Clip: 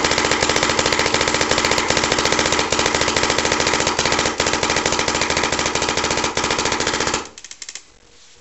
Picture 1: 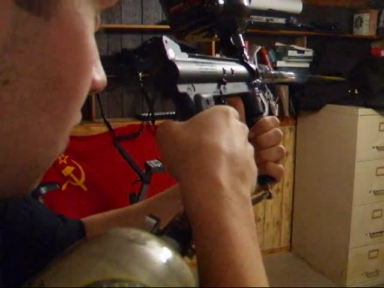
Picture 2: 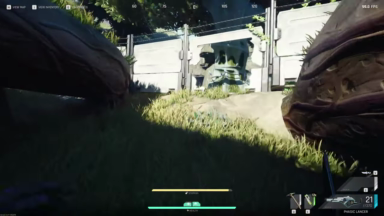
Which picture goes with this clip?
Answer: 1